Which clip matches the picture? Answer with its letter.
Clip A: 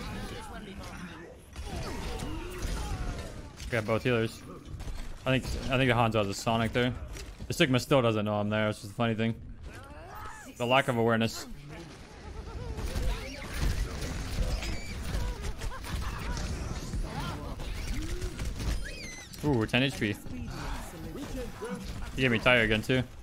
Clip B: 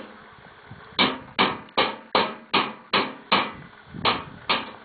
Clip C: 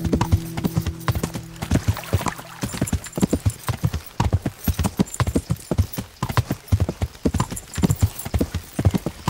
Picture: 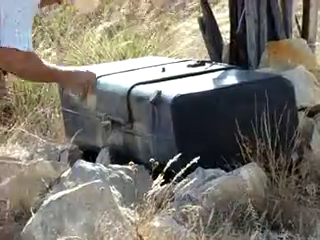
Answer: B